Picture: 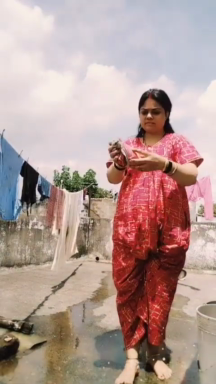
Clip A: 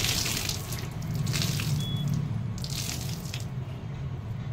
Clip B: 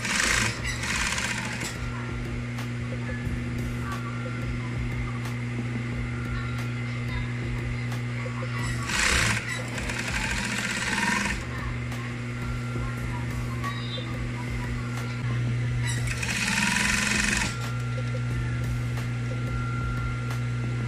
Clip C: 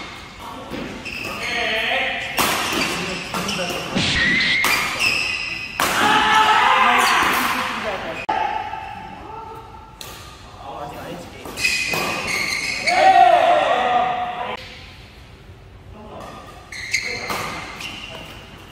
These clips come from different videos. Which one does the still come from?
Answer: A